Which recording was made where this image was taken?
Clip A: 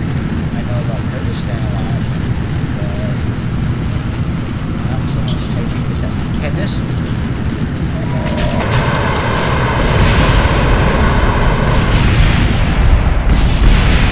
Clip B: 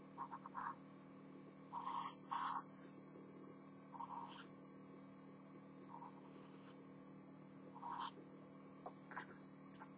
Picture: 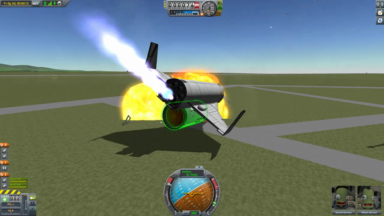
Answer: A